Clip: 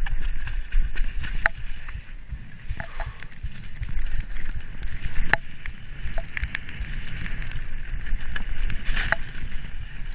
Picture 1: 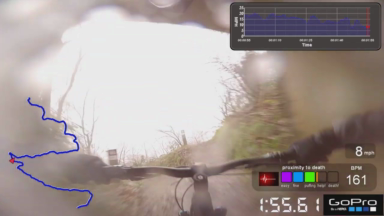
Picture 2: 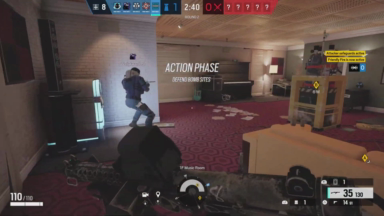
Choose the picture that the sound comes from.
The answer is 1